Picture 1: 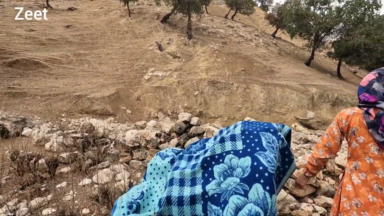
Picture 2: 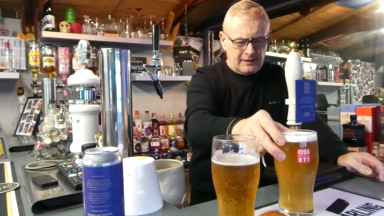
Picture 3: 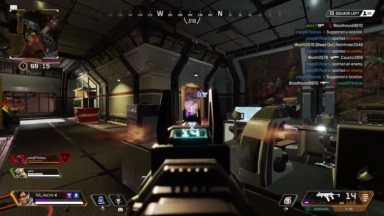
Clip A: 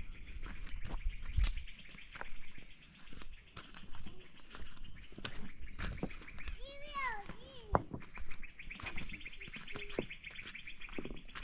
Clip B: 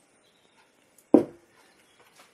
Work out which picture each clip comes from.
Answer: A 1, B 2